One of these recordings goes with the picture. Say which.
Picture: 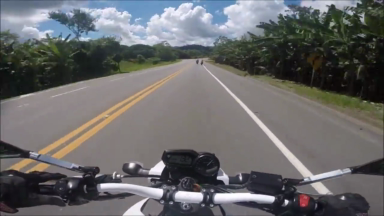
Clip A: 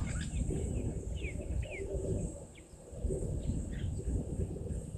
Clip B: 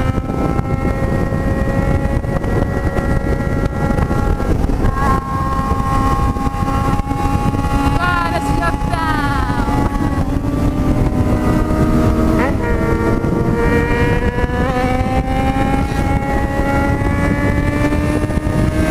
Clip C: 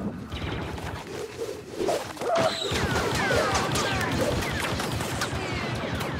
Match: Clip B